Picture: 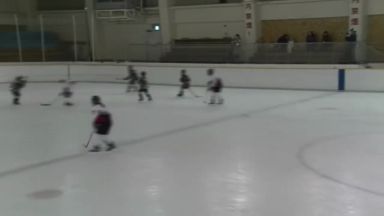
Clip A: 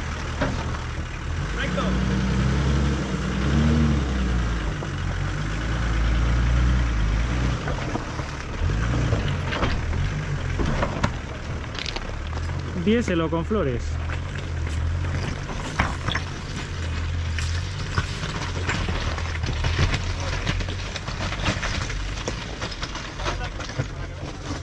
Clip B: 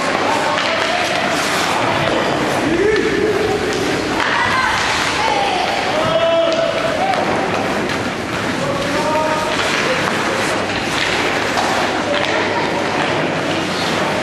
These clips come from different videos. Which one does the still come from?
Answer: B